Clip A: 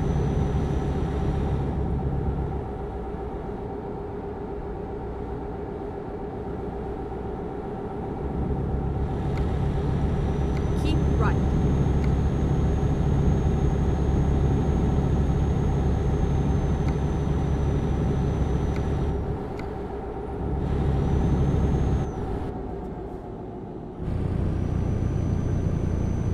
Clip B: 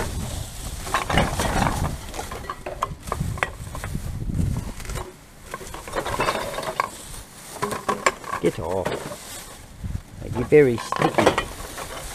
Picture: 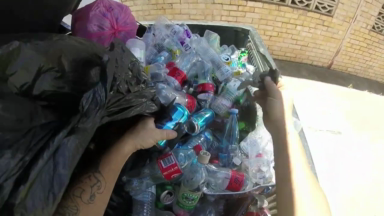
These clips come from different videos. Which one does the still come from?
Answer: B